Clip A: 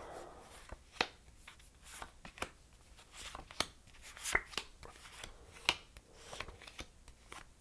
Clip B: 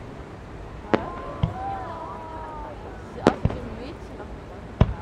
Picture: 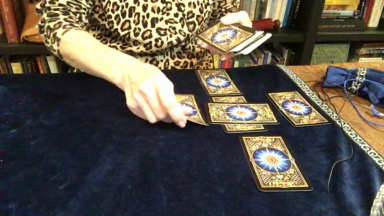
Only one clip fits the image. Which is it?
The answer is A